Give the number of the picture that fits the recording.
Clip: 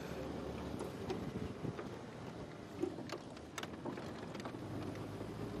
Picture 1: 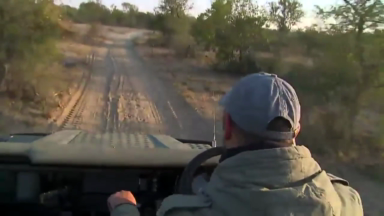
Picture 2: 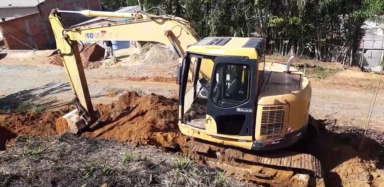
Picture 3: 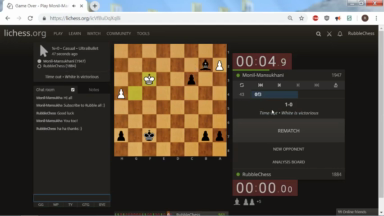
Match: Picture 1